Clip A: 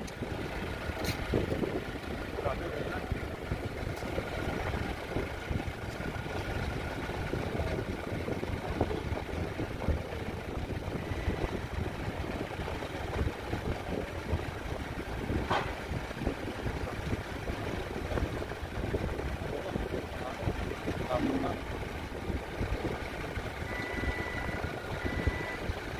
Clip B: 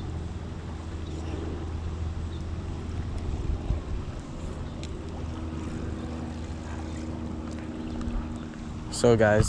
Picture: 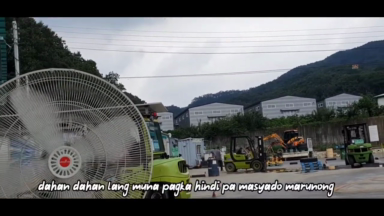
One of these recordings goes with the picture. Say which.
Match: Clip A